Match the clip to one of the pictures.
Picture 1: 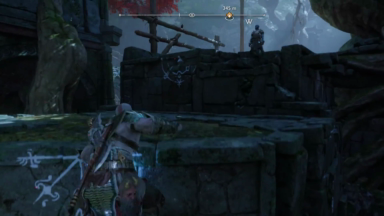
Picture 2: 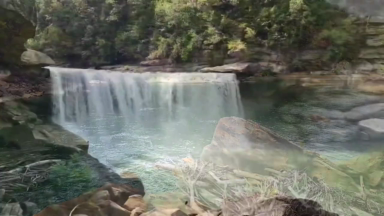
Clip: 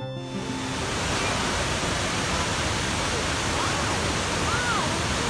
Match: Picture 2